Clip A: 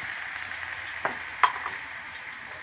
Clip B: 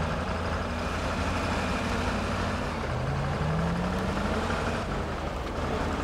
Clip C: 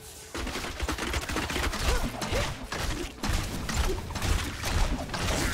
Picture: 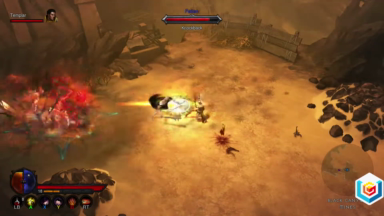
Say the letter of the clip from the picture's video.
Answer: C